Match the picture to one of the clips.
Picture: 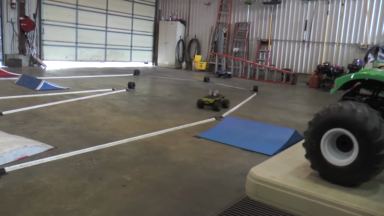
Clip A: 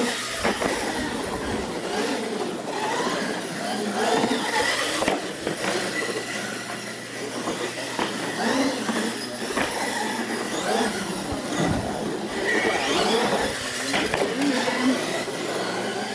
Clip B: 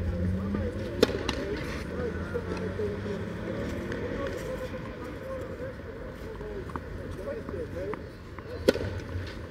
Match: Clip A